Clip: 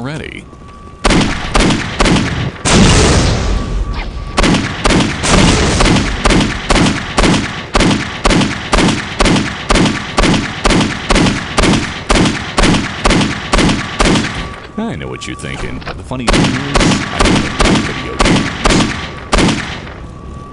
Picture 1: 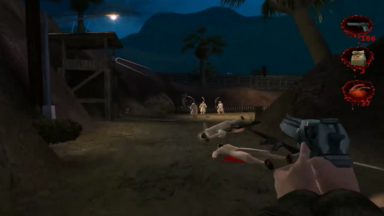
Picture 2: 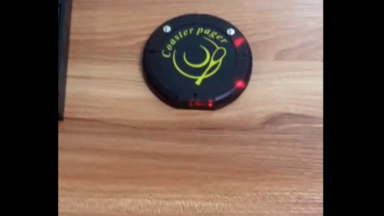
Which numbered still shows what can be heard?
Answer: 1